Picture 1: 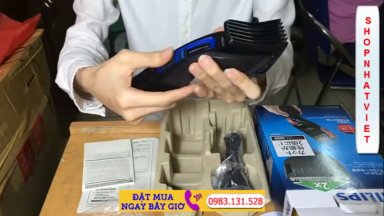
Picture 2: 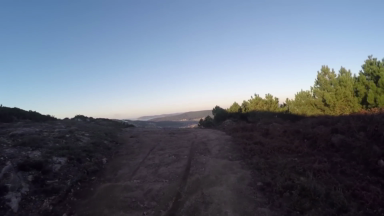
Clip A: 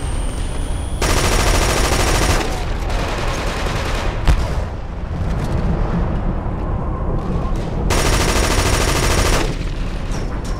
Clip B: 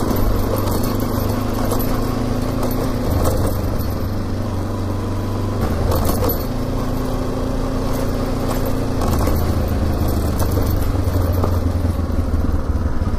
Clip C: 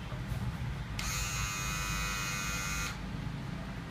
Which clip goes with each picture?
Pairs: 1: C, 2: B